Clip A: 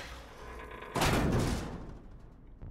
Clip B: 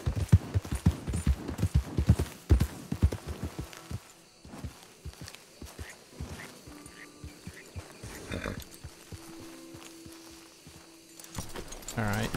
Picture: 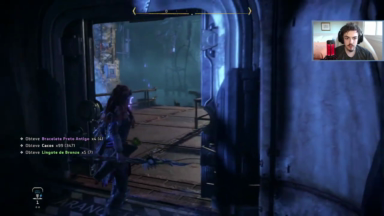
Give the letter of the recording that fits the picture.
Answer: A